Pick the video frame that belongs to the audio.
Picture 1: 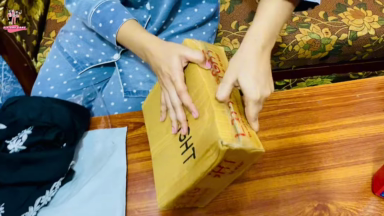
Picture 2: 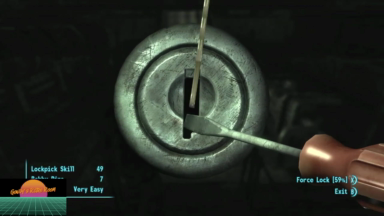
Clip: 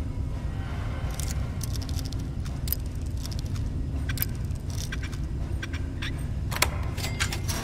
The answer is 2